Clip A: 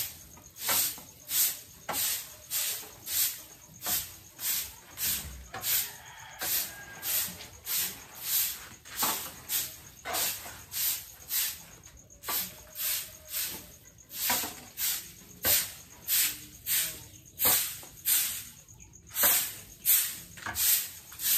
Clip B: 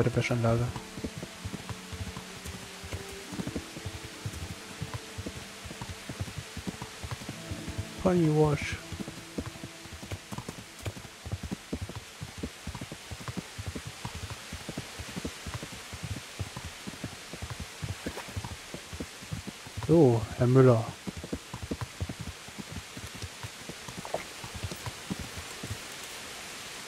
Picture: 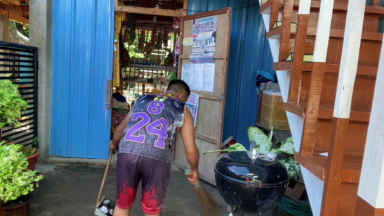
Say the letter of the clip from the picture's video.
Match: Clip A